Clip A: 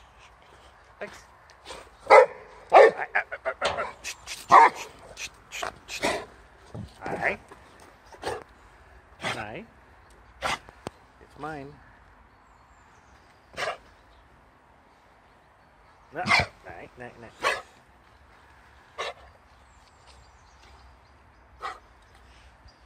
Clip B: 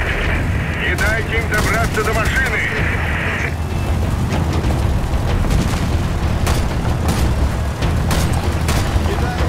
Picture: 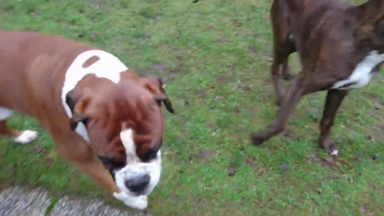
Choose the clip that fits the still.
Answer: A